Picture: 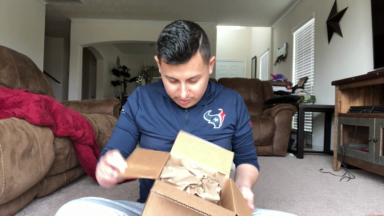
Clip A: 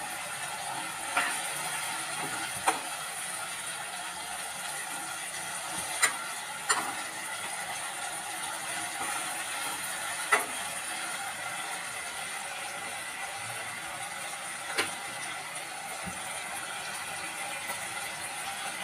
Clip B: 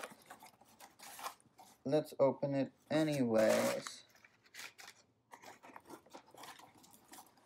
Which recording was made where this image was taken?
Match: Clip B